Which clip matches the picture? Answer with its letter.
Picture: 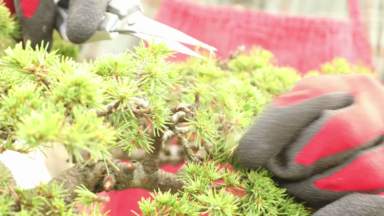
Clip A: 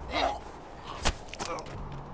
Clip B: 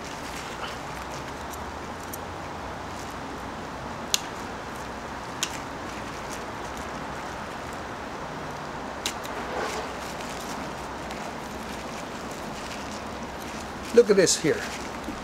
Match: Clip B